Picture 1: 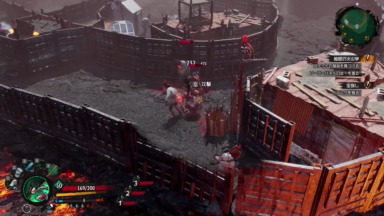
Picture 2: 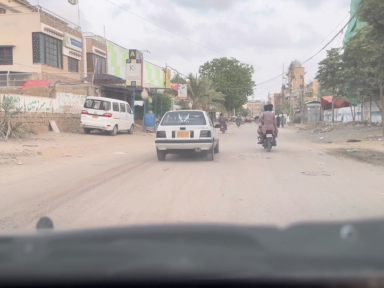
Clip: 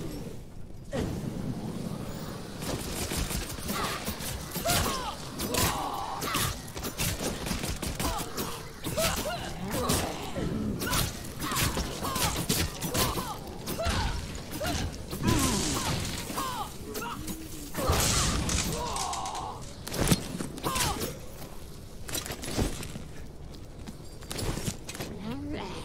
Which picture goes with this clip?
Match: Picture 1